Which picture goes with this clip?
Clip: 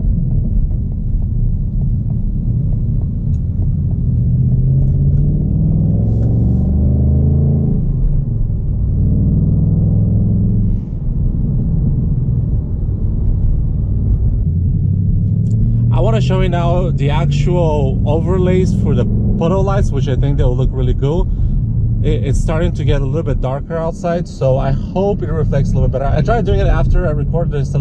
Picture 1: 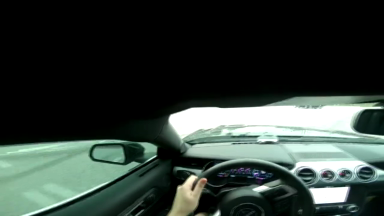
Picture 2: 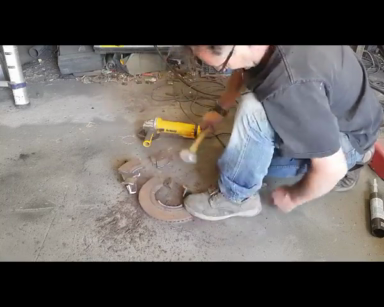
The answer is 1